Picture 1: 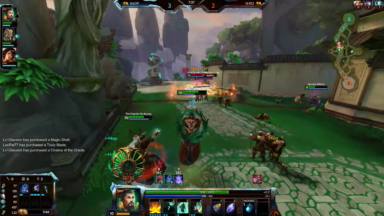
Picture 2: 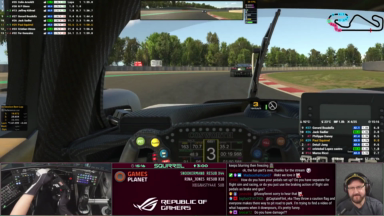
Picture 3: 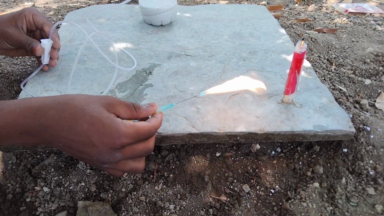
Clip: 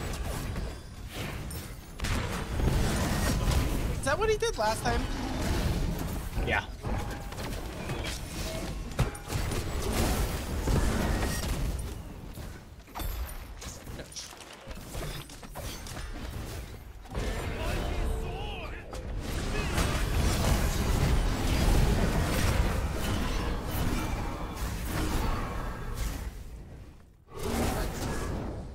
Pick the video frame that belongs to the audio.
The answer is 1